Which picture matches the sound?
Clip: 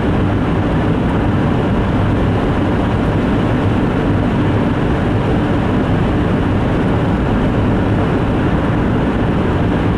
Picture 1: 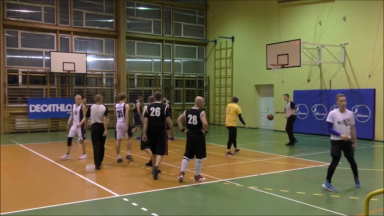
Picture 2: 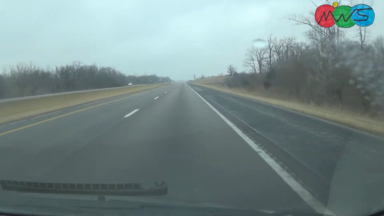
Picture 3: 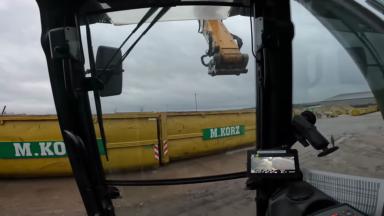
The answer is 2